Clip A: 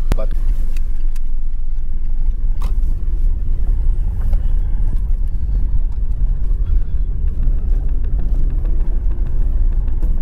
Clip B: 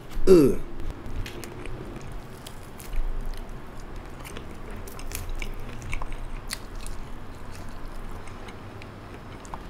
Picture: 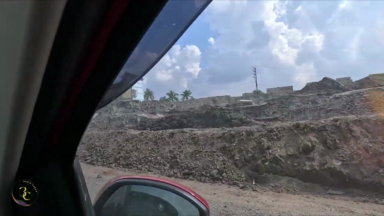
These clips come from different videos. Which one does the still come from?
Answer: A